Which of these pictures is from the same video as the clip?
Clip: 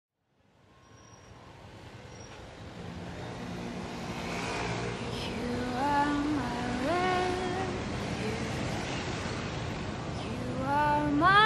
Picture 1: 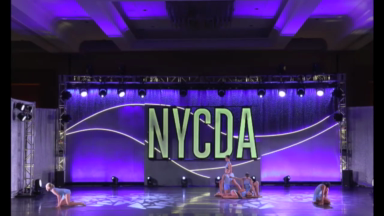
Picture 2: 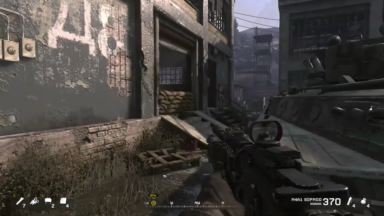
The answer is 1